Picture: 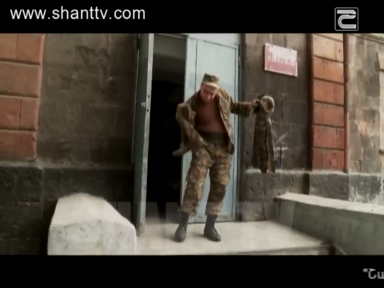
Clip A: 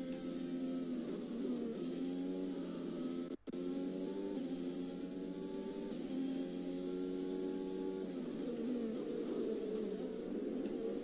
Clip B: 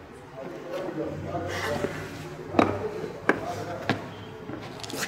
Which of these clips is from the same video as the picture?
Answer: B